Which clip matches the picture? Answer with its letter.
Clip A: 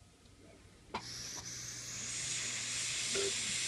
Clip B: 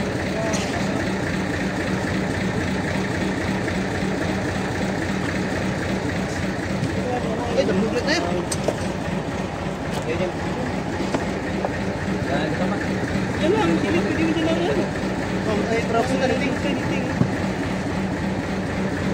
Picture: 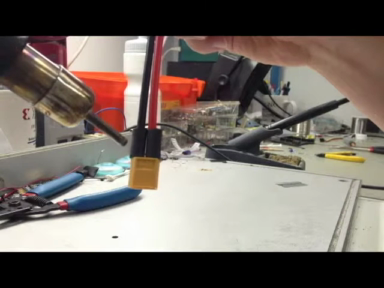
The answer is A